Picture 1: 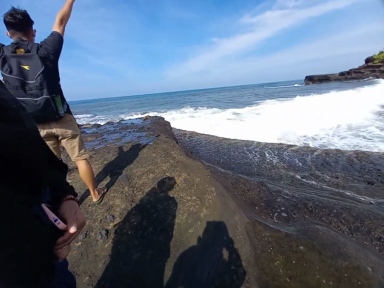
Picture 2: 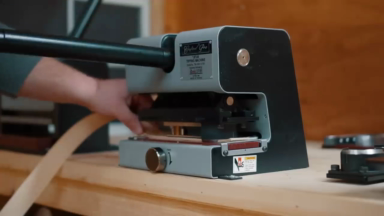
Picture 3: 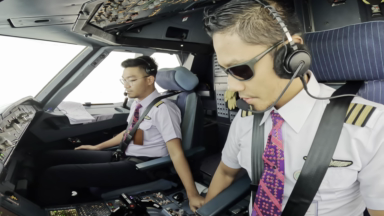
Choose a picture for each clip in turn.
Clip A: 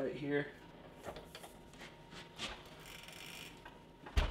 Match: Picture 2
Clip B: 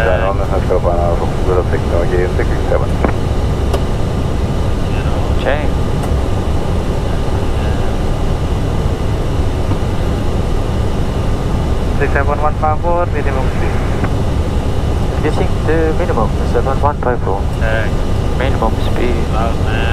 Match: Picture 3